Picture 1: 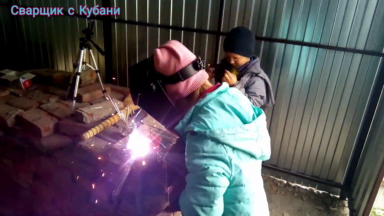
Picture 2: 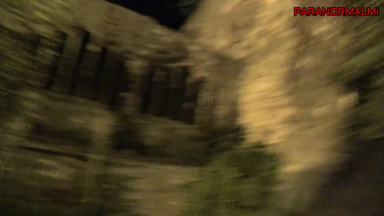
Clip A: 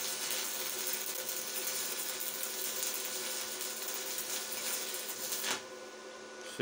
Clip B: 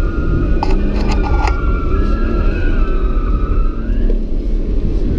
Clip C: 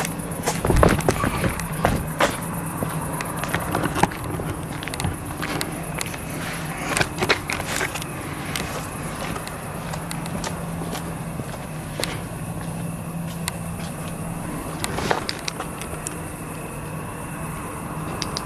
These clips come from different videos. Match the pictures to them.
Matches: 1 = A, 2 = C